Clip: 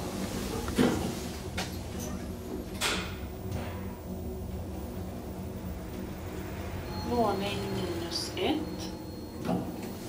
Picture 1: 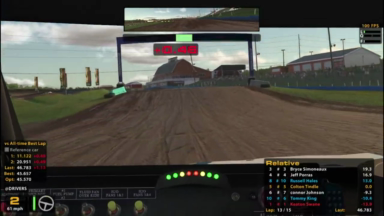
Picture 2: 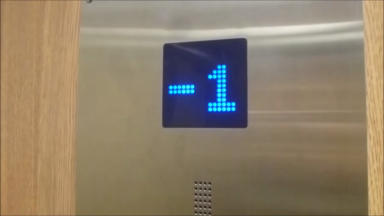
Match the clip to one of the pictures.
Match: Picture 2